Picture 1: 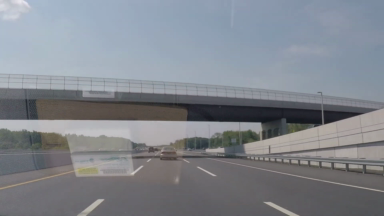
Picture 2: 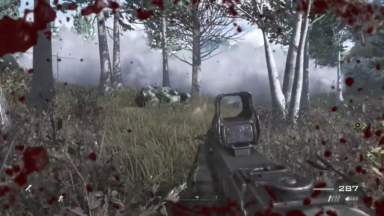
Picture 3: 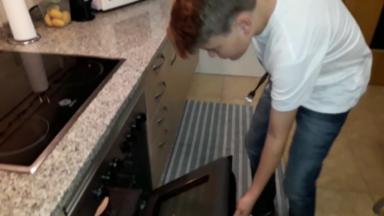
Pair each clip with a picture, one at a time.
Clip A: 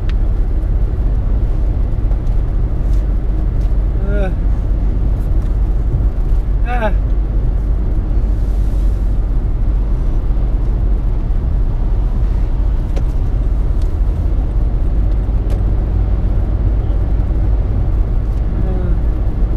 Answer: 1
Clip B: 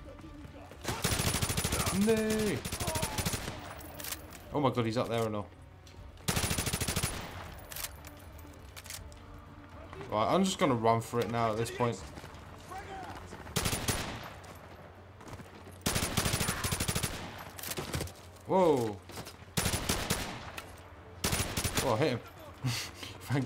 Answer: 2